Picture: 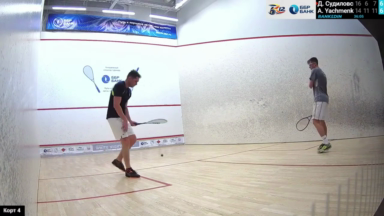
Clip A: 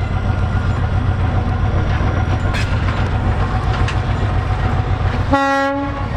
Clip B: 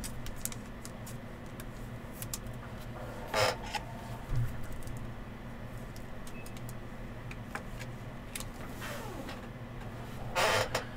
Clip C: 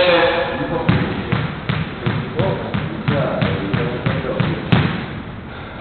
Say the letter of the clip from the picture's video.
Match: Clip C